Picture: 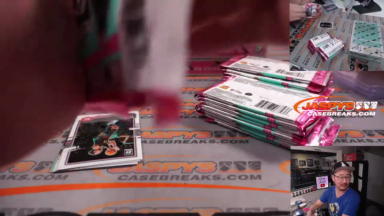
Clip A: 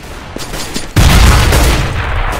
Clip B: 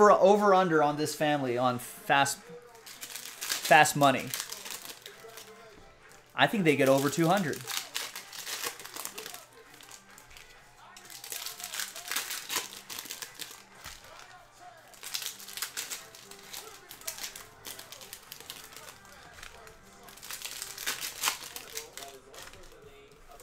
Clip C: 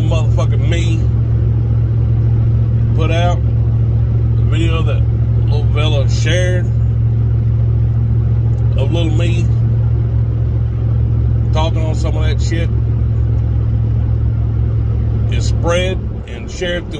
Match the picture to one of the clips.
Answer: B